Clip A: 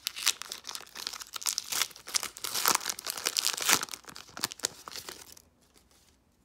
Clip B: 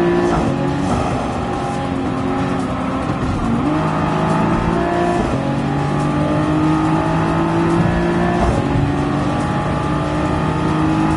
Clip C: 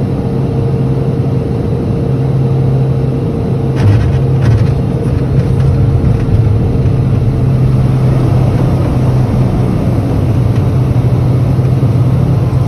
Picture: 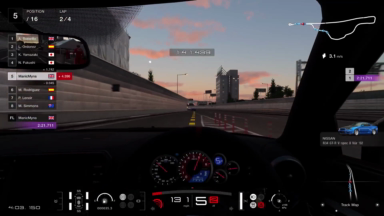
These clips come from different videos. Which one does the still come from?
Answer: B